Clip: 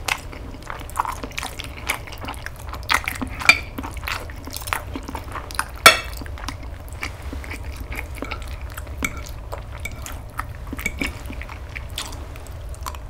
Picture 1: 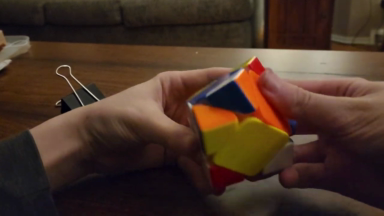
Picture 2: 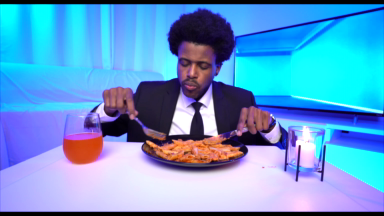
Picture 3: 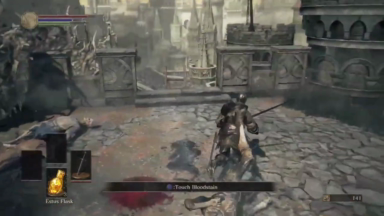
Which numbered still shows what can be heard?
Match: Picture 2